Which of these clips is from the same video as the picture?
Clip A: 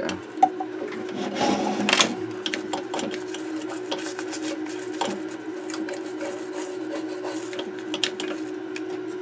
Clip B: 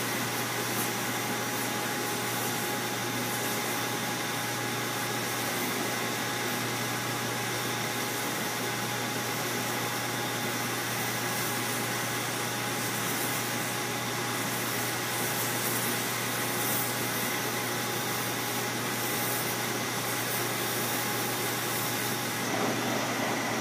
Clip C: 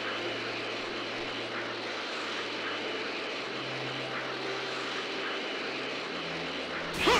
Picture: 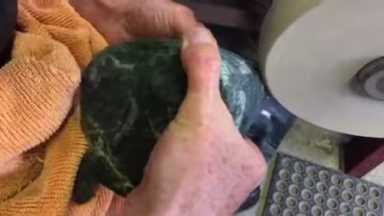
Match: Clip B